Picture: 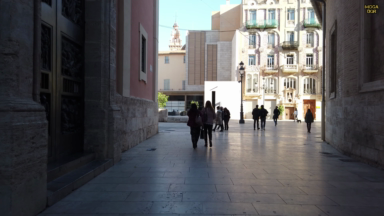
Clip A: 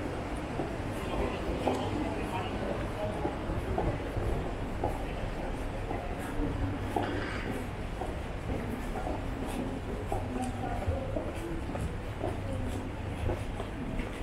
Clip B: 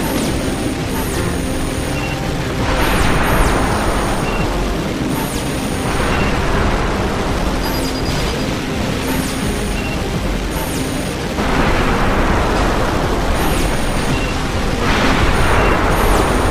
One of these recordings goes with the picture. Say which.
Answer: A